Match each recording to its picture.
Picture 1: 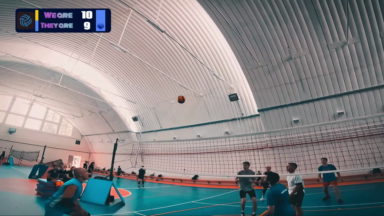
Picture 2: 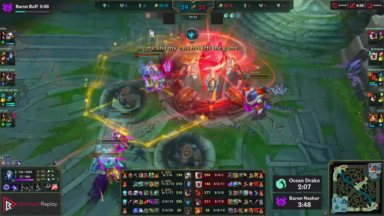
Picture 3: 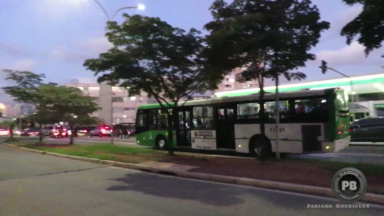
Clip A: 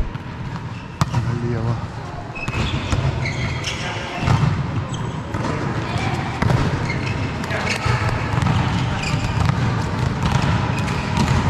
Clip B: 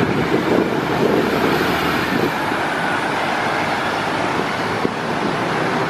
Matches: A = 1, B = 3